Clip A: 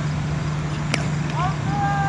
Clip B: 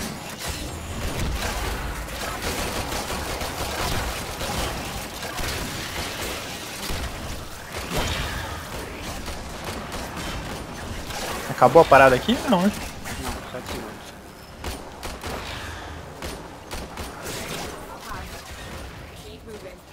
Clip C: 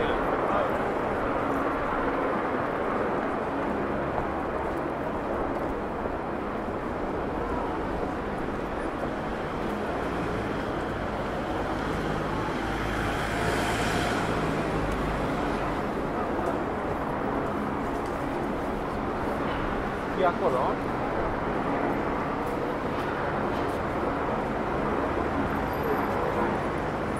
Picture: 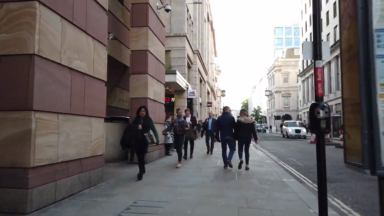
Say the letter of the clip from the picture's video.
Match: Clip C